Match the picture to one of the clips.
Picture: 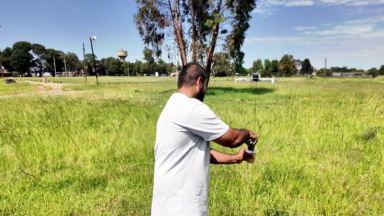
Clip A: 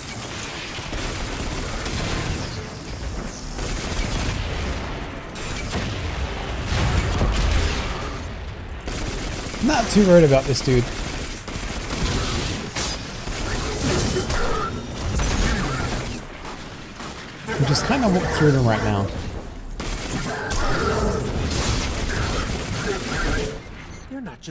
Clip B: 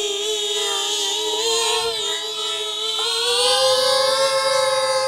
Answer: B